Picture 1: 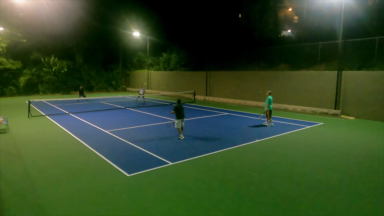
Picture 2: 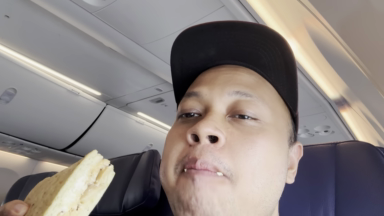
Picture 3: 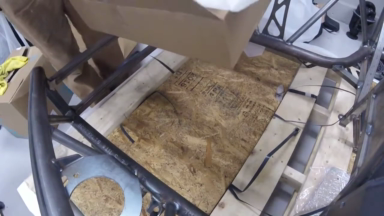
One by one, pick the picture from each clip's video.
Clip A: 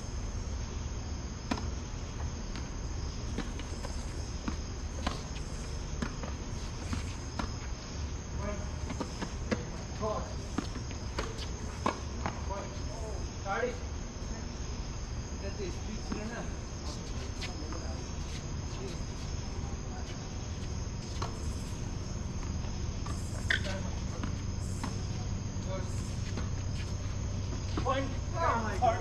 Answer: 1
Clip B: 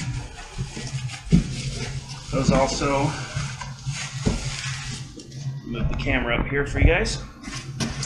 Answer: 3